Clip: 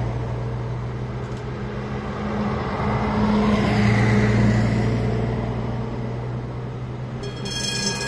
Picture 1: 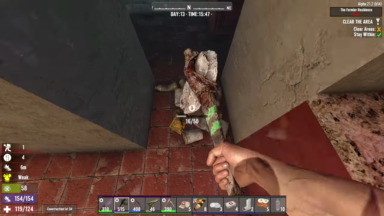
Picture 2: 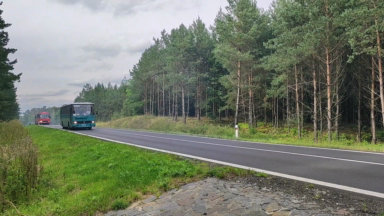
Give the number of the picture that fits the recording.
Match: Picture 2